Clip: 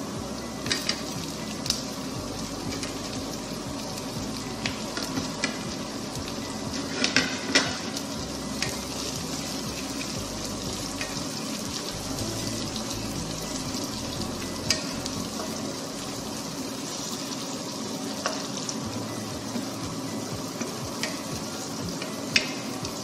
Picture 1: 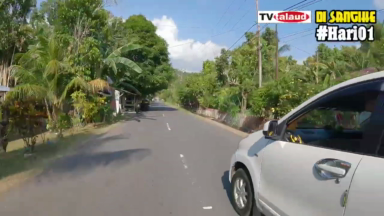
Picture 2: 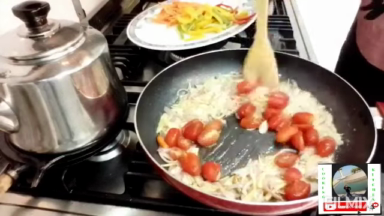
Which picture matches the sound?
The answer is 2